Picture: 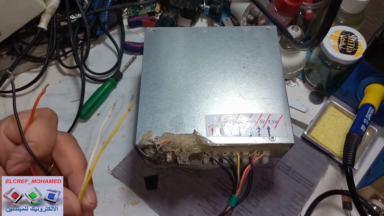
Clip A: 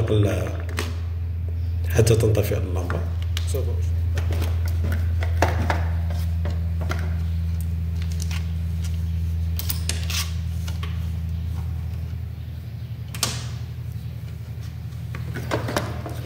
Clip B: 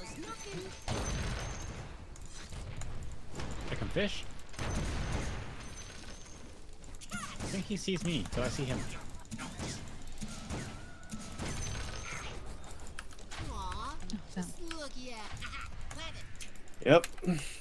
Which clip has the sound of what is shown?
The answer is A